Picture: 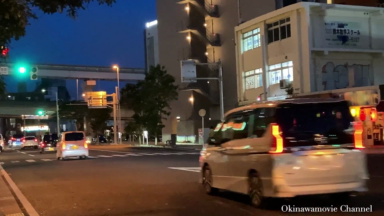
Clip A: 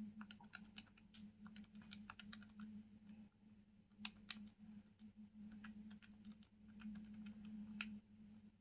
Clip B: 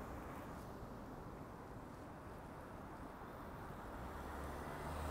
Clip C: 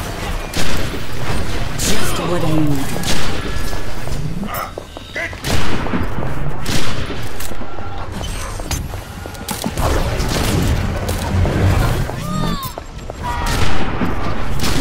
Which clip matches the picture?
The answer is B